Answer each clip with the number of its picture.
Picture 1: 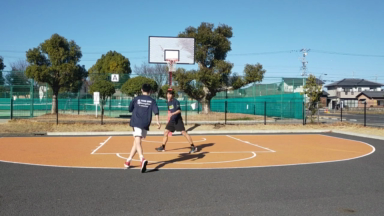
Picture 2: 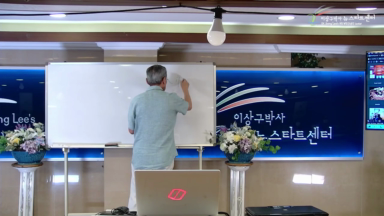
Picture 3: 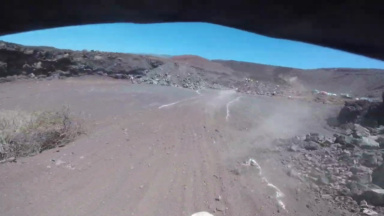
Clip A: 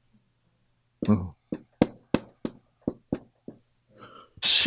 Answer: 2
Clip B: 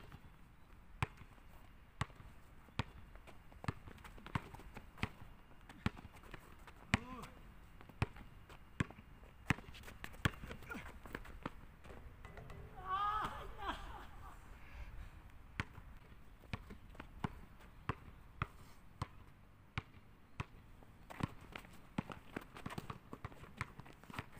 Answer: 1